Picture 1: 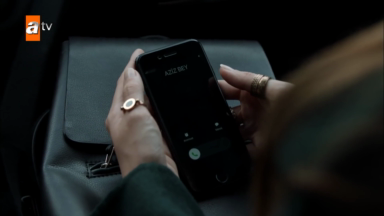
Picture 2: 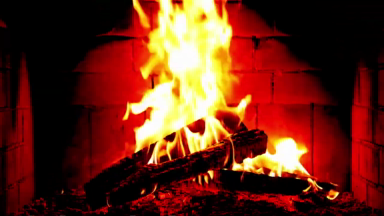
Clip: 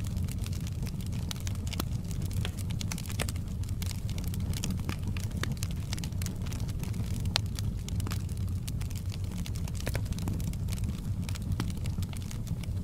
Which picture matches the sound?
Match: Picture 2